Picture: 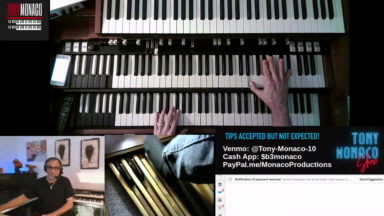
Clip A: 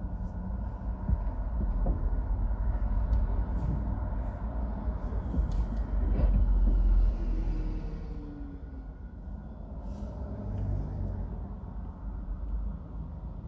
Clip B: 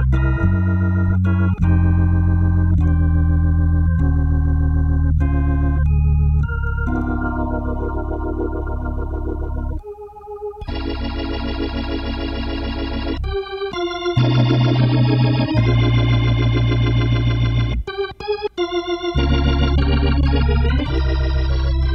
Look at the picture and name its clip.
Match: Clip B